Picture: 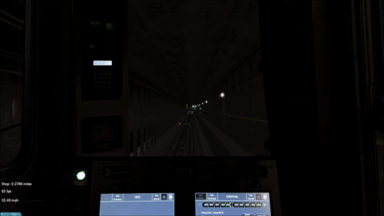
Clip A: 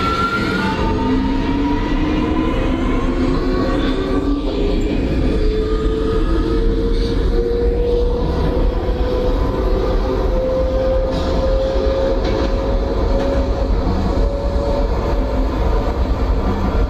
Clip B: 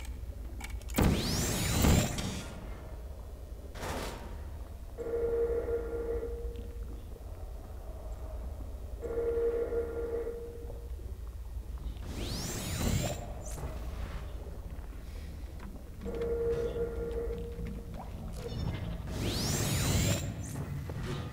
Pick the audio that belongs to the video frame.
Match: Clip A